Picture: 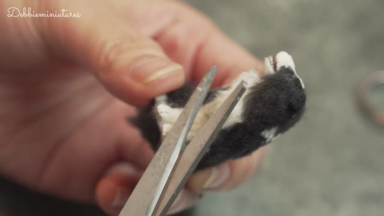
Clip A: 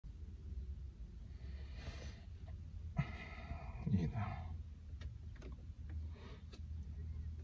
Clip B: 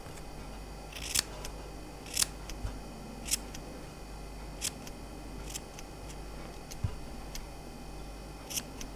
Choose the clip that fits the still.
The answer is B